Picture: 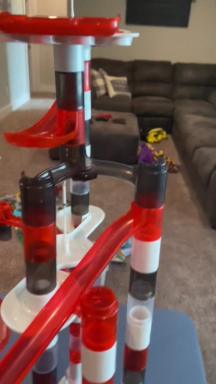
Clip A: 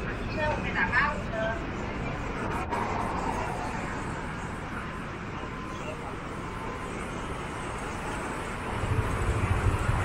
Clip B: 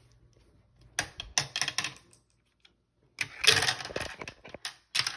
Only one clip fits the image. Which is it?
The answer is B